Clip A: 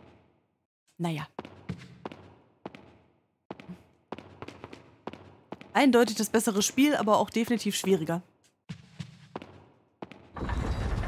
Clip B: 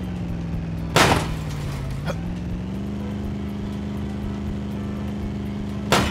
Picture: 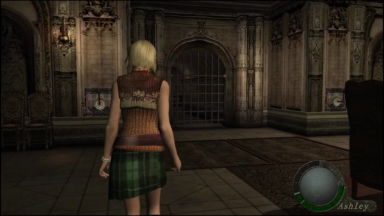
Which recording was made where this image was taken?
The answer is A